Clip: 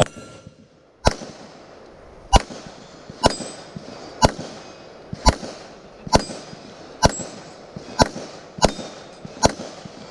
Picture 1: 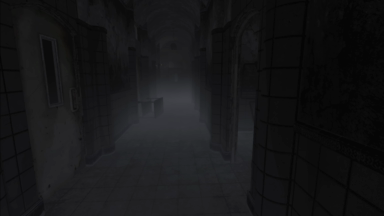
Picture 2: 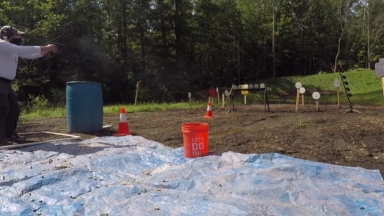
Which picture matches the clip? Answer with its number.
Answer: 2